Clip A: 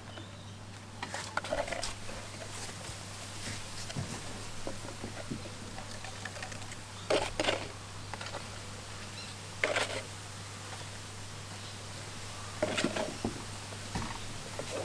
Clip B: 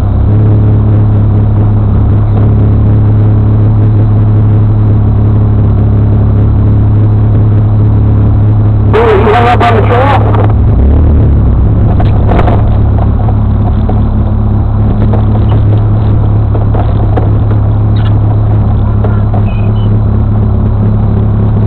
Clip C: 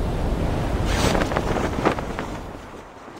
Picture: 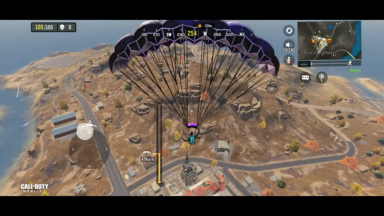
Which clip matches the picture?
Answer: C